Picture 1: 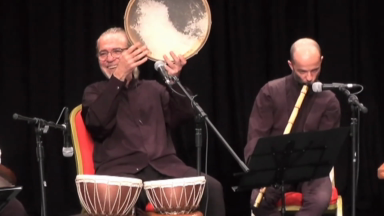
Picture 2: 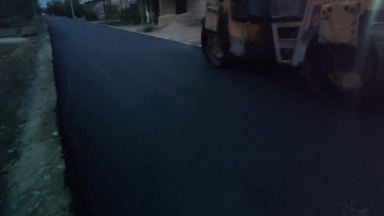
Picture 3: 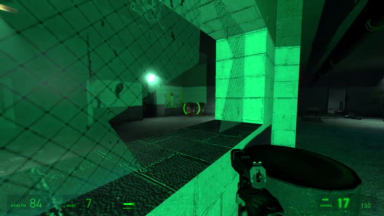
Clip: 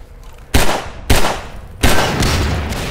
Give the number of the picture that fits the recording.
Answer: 3